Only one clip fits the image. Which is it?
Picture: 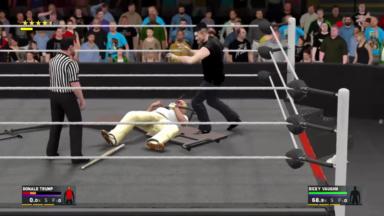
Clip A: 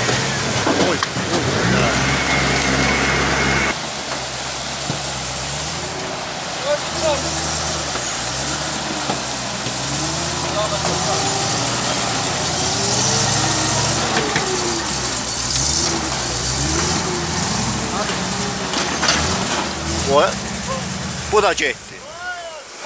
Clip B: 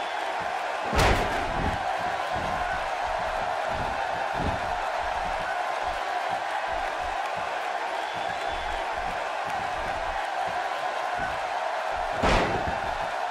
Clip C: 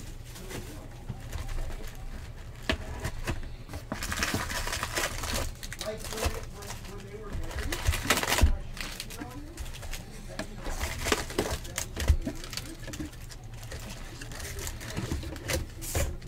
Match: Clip B